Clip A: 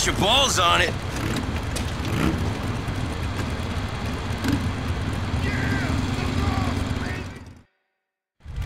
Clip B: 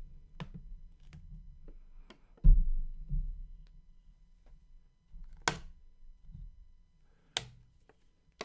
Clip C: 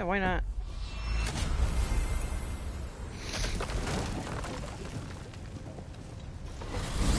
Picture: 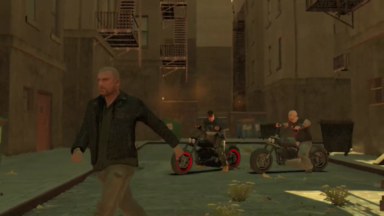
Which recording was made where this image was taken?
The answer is A